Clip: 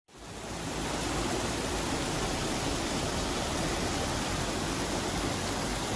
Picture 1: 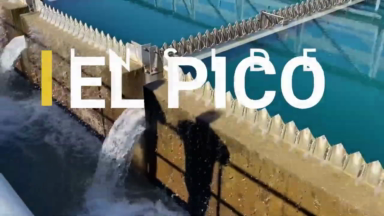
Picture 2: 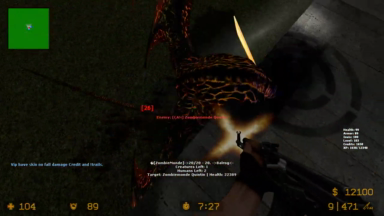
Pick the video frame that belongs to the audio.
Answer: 1